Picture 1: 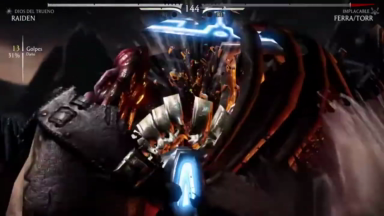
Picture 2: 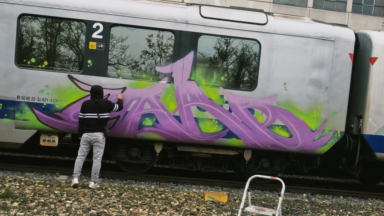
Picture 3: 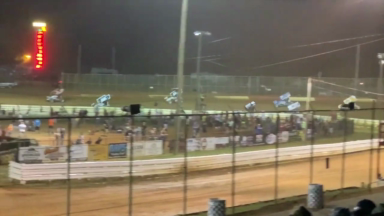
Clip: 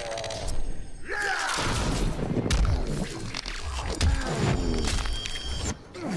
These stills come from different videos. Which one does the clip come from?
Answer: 1